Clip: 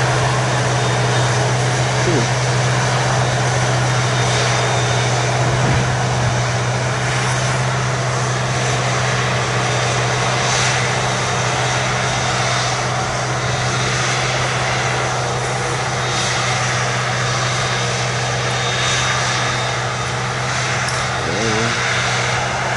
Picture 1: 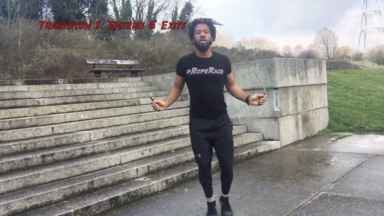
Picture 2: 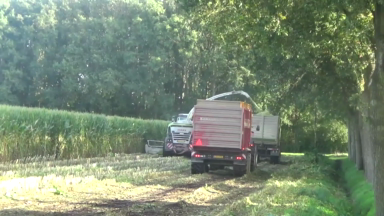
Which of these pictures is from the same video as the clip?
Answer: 2